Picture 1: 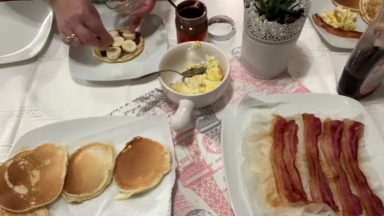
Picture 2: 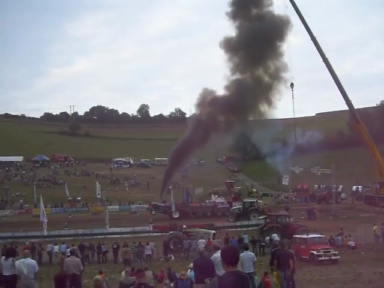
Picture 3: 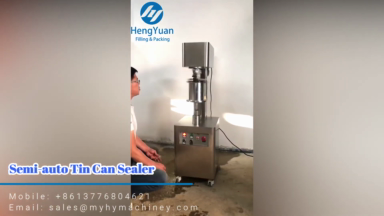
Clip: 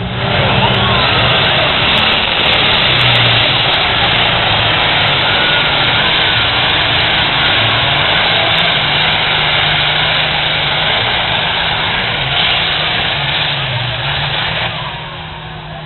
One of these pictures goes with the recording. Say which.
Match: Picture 2